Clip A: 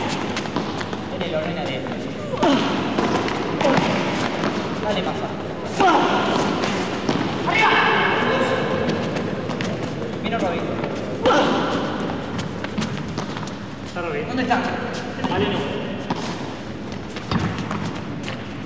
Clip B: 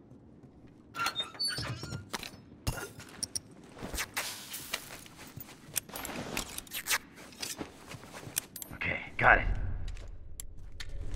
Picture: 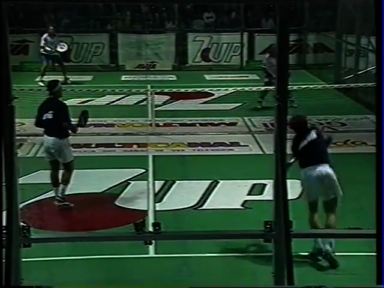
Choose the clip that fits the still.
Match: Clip A